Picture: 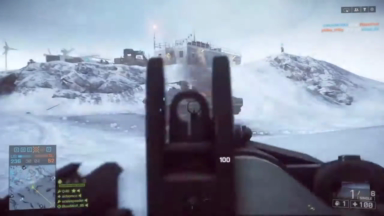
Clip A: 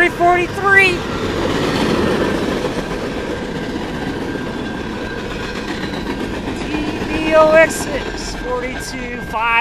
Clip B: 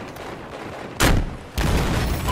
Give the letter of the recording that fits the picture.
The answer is B